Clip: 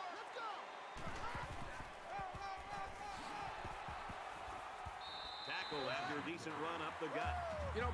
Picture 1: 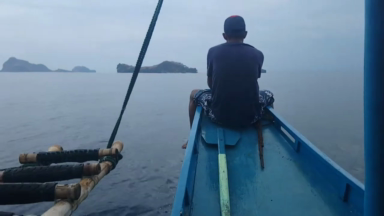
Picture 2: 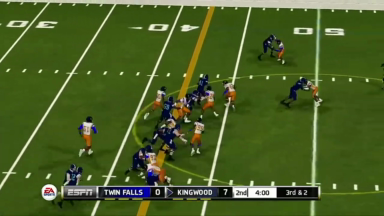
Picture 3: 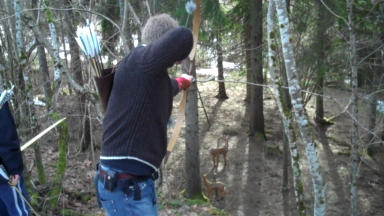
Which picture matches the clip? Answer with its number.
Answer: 2